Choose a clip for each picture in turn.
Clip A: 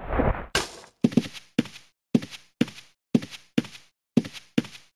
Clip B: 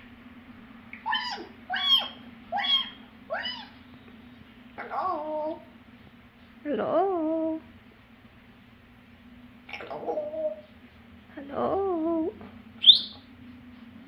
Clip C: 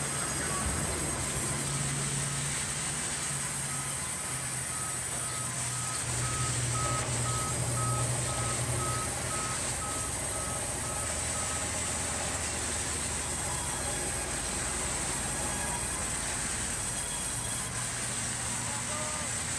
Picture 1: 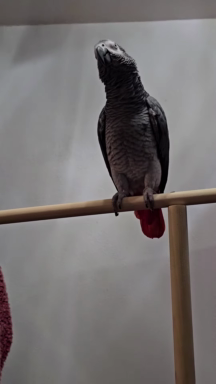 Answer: B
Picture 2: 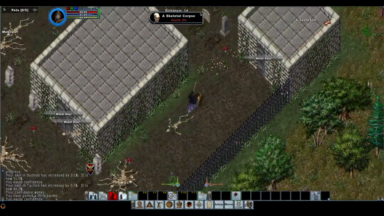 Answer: A